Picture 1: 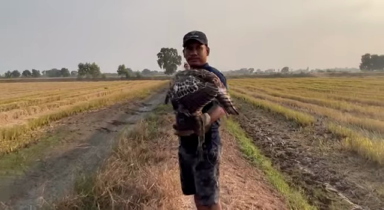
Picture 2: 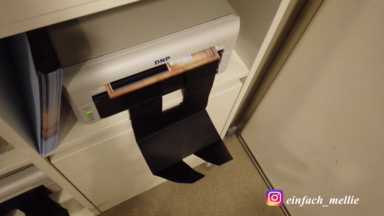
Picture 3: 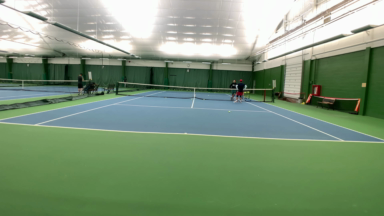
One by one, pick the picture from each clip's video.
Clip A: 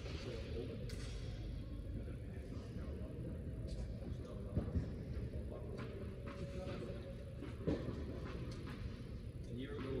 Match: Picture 3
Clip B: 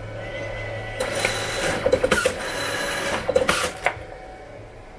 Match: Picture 2